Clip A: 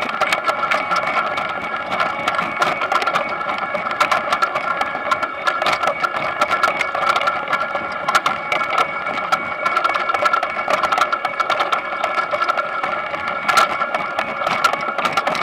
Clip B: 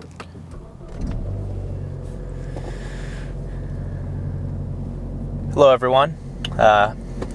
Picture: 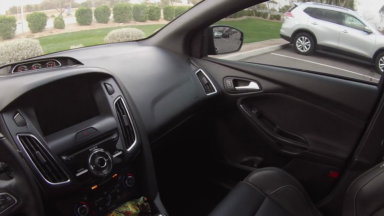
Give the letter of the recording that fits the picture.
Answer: B